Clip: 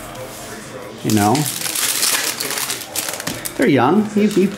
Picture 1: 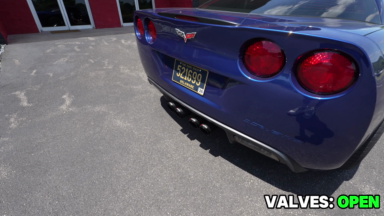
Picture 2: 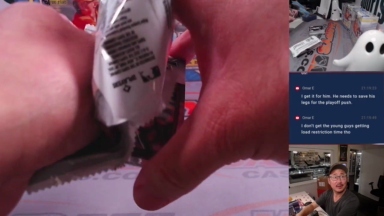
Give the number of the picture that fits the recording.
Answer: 2